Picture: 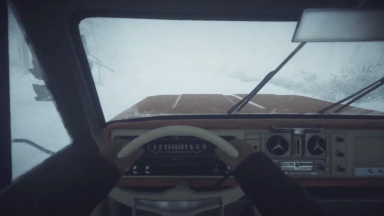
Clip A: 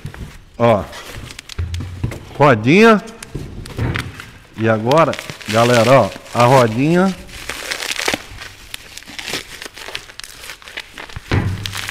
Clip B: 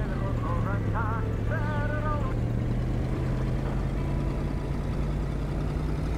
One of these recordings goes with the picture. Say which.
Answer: B